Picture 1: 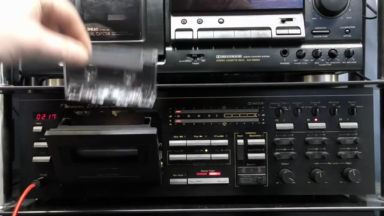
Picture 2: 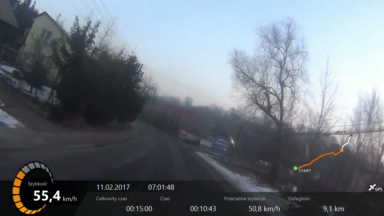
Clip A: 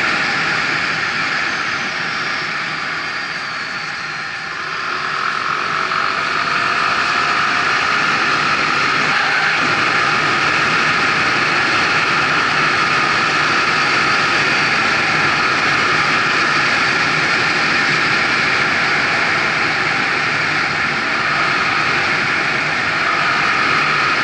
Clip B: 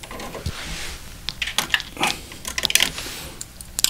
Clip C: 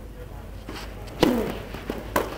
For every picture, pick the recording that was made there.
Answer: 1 B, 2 A